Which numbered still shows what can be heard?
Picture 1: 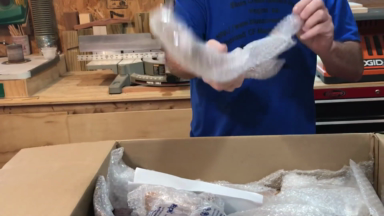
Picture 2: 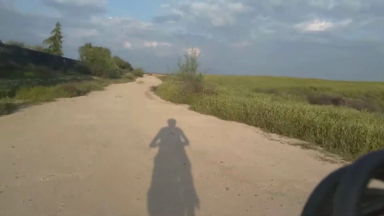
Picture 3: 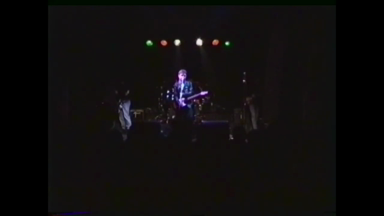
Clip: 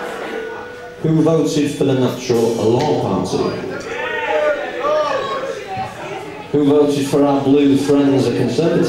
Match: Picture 3